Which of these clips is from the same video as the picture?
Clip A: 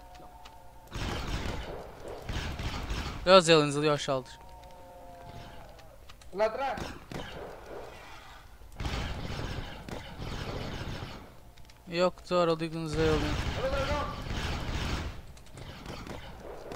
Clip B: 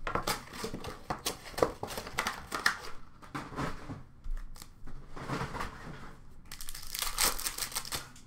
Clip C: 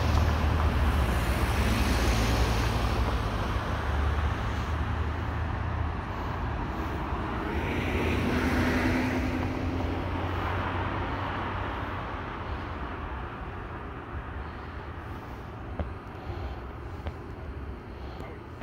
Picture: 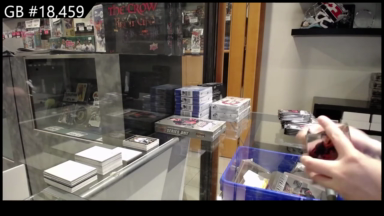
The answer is B